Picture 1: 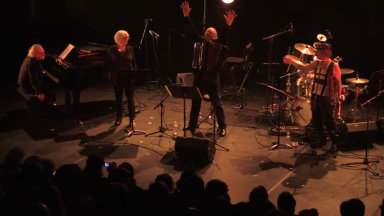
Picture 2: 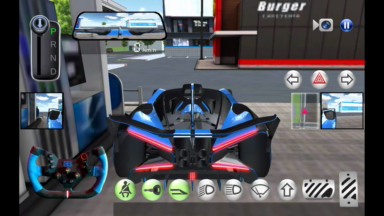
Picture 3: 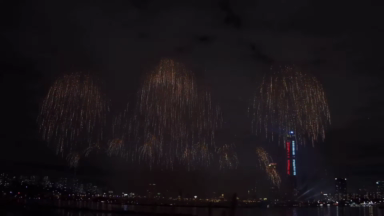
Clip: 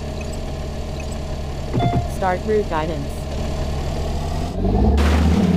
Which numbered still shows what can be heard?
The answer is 2